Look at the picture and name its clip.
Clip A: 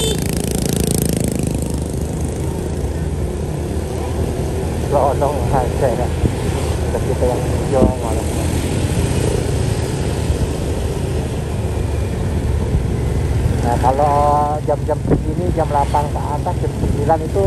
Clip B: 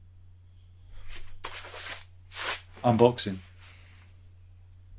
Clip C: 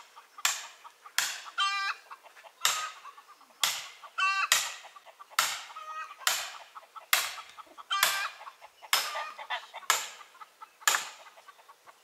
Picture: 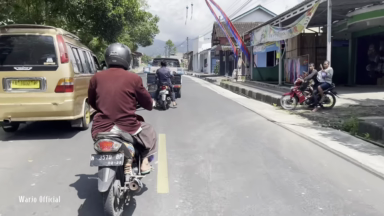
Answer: A